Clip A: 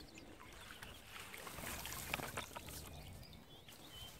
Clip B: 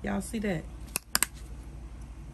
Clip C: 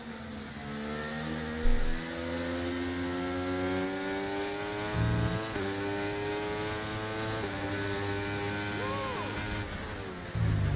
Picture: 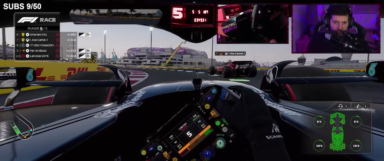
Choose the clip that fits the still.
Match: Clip C